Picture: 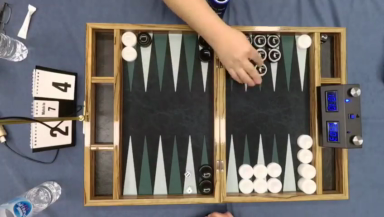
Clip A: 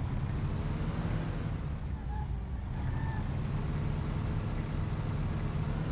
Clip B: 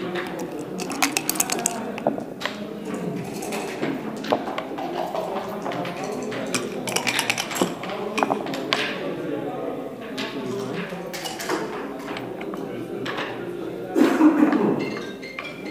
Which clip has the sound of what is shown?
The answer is B